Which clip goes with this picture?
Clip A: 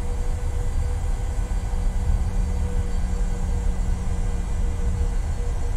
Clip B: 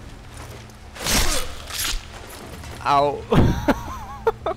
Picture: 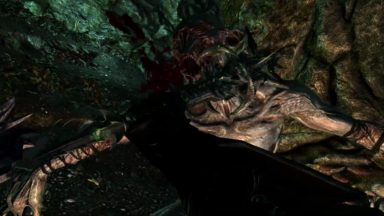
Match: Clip B